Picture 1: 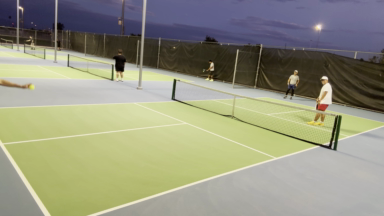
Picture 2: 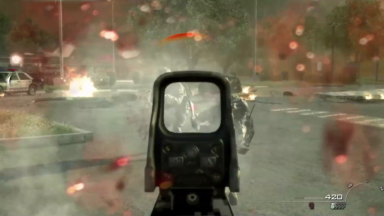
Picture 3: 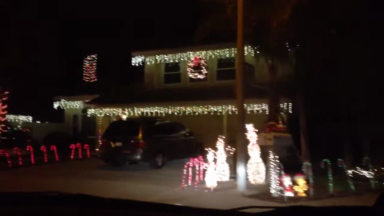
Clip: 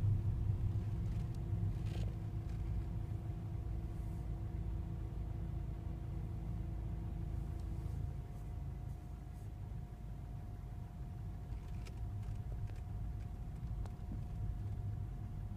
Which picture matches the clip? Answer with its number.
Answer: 3